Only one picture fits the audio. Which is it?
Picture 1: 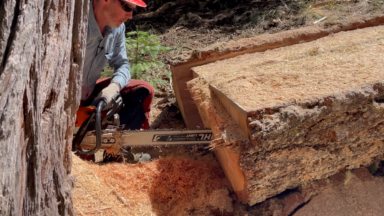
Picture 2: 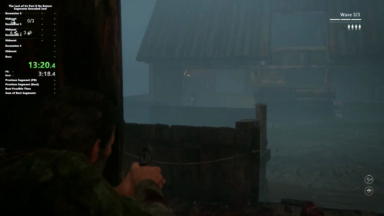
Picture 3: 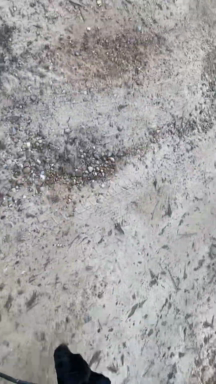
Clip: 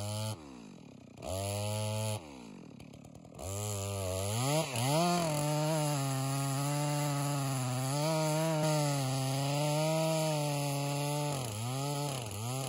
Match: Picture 1